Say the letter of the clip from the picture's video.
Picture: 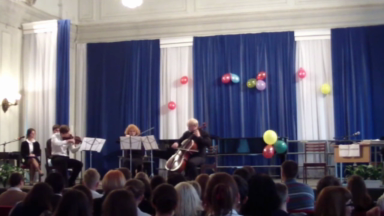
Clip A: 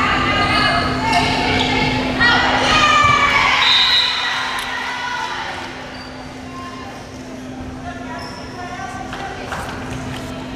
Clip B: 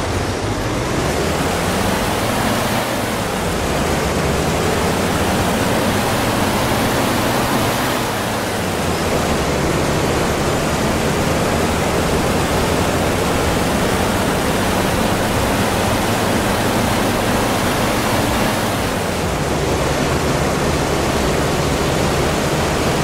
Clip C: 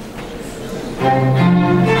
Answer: C